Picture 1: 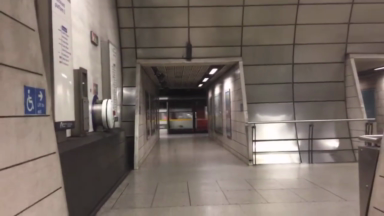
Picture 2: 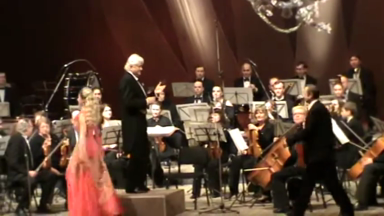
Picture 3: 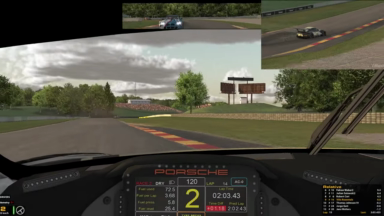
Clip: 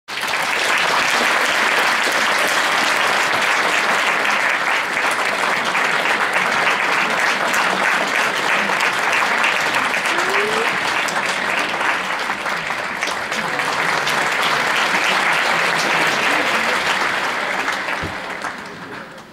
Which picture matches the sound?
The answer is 2